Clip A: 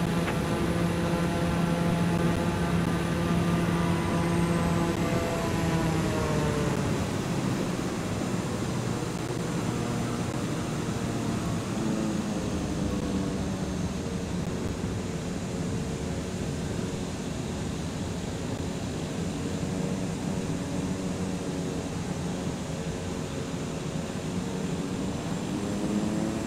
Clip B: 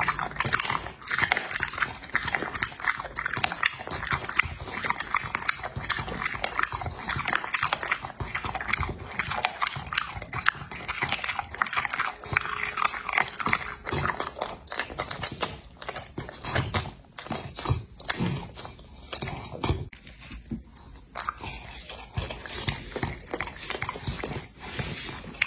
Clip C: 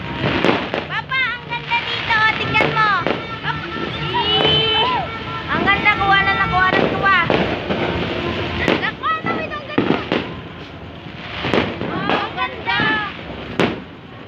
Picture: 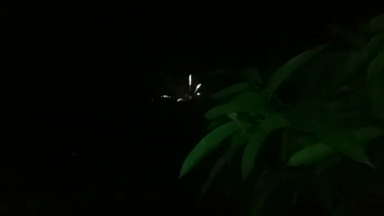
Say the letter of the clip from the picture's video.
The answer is C